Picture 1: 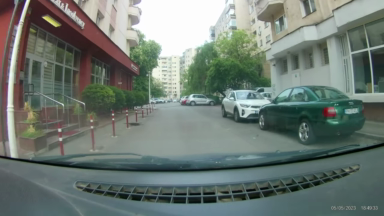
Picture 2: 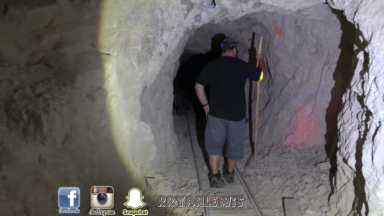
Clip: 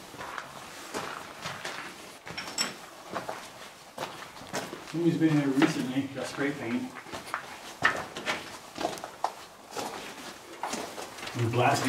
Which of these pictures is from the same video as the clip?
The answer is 2